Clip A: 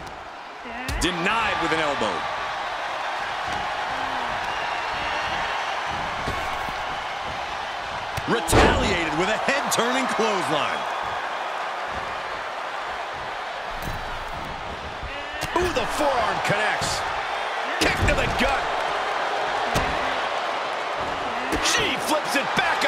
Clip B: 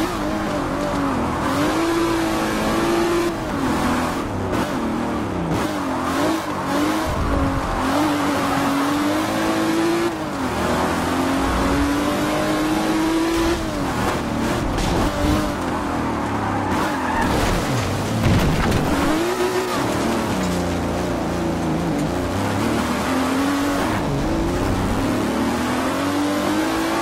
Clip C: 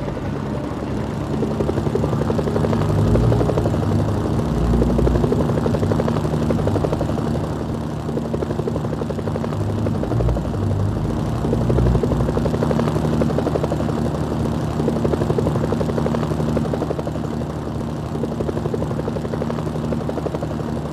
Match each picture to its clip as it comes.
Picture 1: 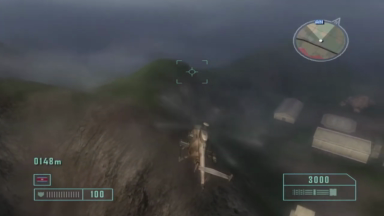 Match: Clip C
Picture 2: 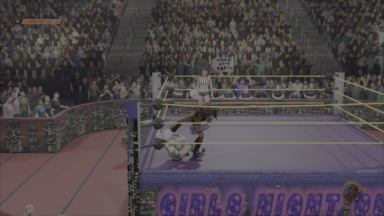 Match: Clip A